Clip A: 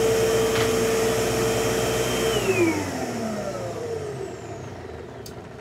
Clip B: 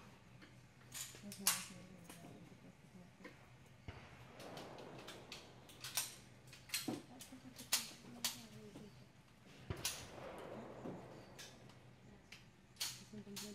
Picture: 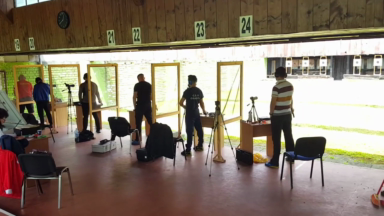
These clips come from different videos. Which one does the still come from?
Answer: B